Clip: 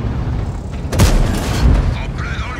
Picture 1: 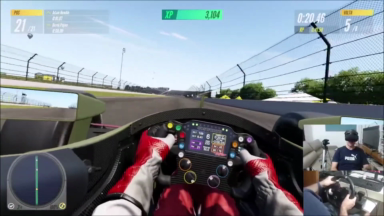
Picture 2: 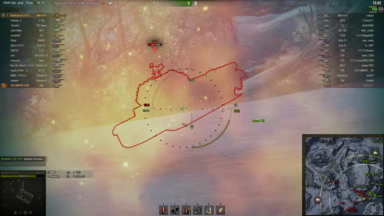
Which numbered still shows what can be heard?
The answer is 2